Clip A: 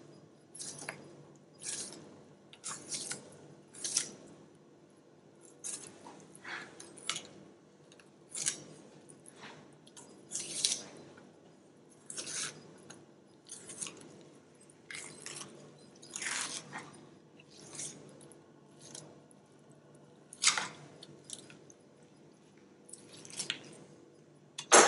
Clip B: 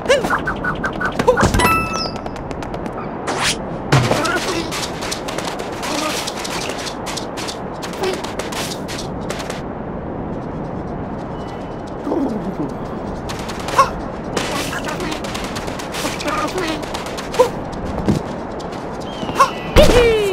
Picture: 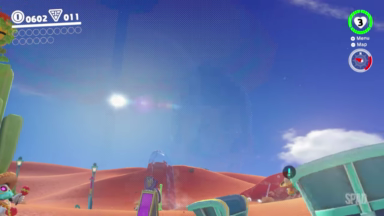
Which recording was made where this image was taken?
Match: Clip B